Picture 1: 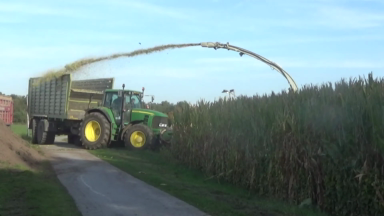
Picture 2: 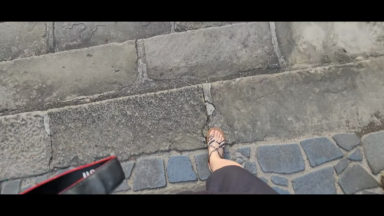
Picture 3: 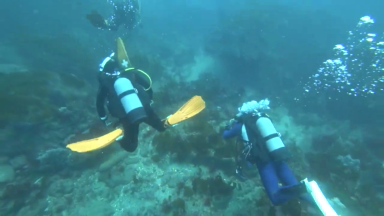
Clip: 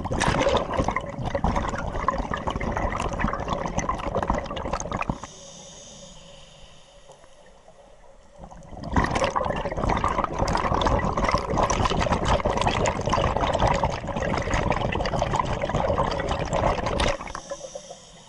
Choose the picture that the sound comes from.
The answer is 3